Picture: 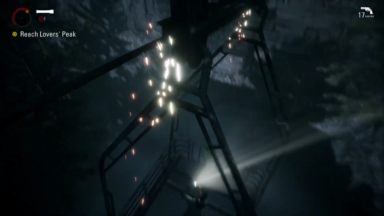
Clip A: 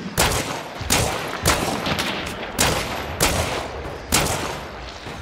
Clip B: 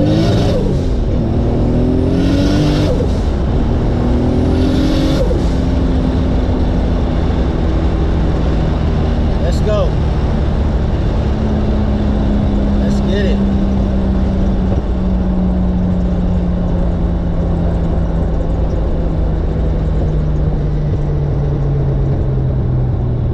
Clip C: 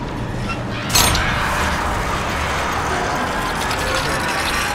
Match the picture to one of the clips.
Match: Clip C